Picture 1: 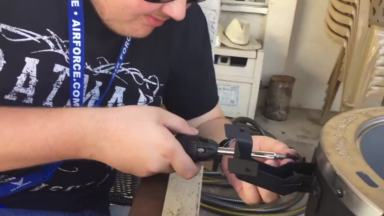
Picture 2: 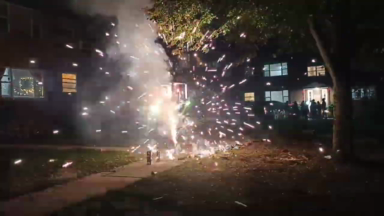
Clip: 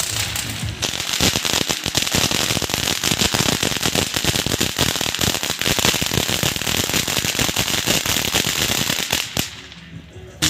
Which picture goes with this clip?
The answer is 2